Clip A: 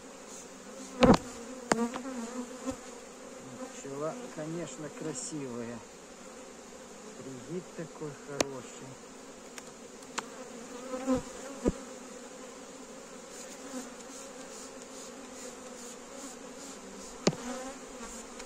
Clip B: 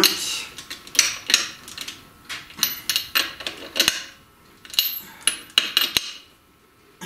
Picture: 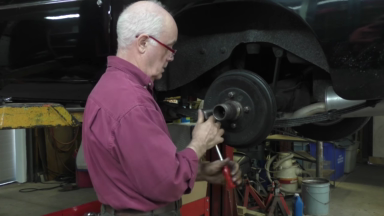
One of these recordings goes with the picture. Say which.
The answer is B